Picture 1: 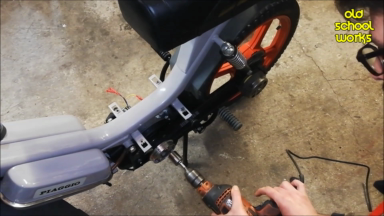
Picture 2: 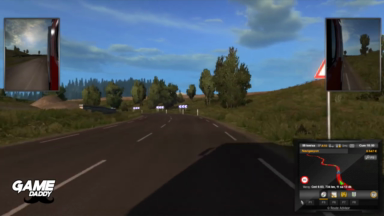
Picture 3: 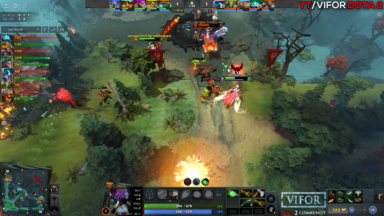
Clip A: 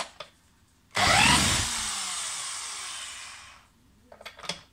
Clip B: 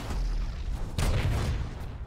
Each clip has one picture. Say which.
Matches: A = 1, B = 3